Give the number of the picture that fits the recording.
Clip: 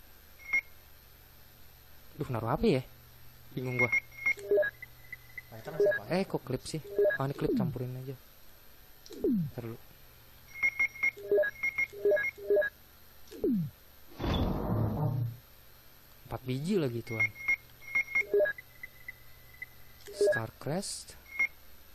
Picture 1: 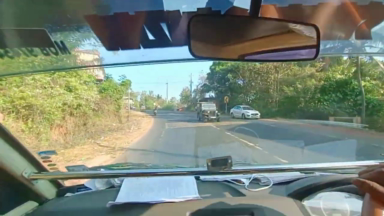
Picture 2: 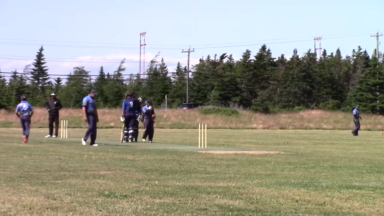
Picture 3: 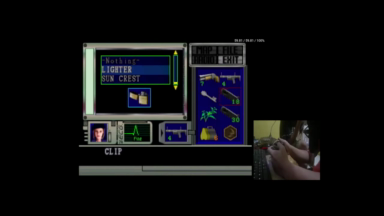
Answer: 3